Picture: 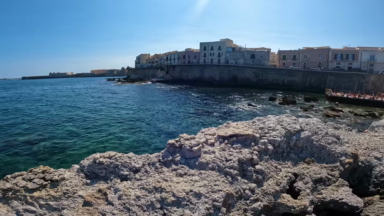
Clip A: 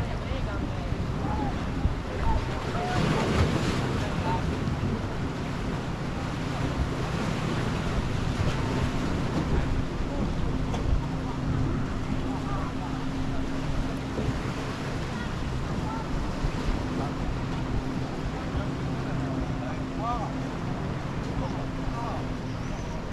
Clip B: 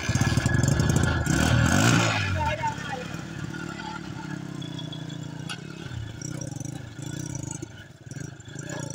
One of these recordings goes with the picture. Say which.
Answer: A